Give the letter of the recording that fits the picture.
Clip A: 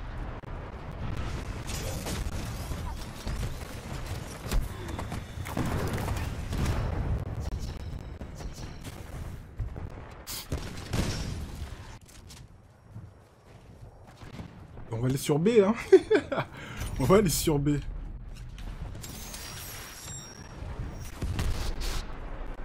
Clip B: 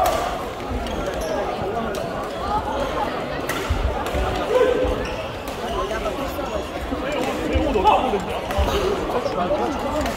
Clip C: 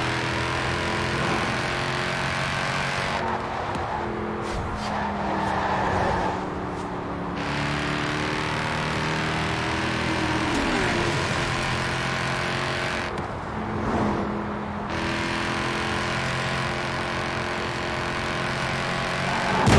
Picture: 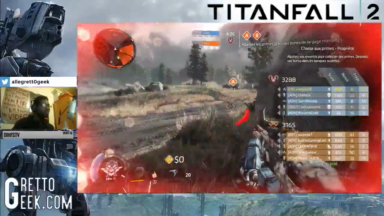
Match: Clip A